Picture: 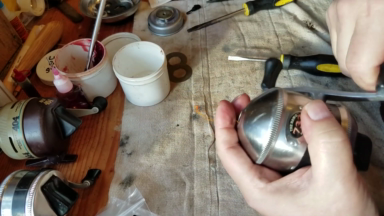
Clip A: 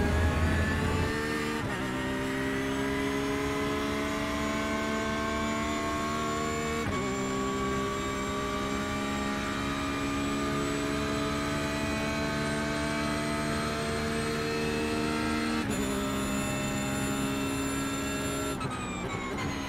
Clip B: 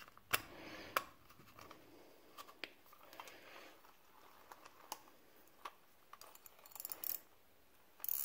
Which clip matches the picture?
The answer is B